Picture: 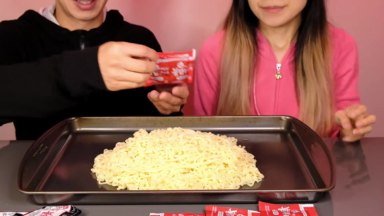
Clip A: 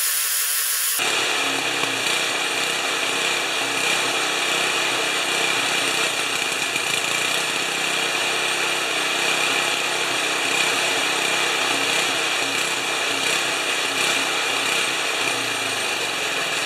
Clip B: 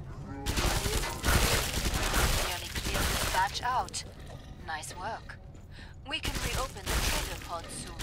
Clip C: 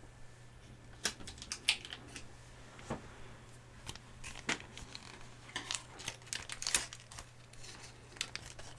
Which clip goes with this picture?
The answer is C